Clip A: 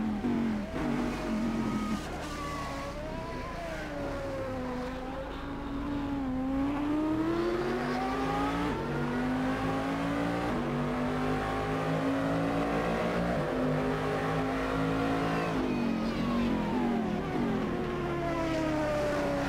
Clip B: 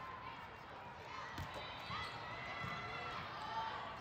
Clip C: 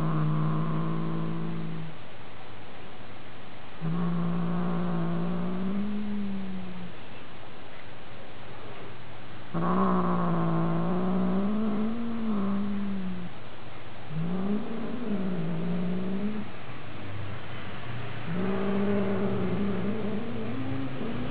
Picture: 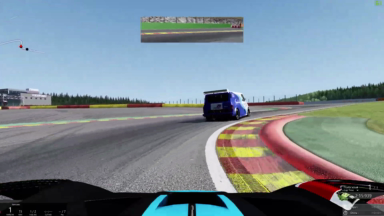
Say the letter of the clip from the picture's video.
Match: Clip A